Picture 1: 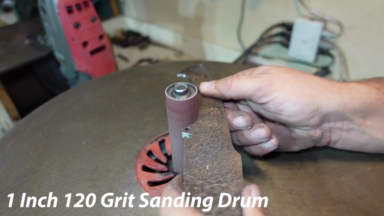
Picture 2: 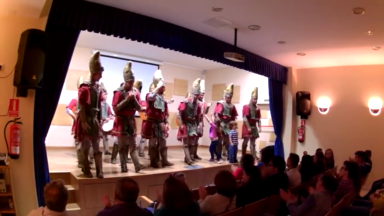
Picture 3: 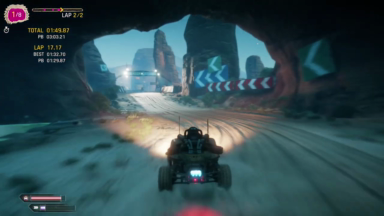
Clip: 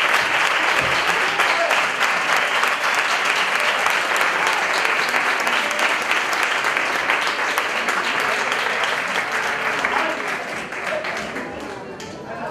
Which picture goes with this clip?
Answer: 2